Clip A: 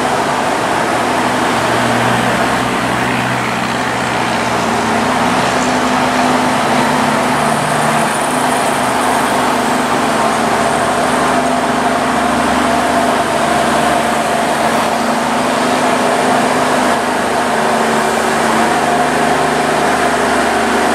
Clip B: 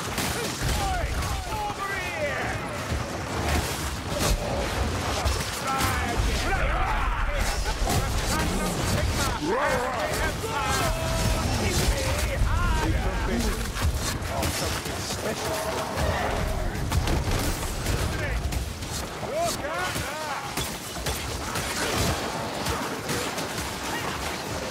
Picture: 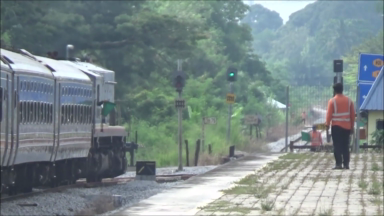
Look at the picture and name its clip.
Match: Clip A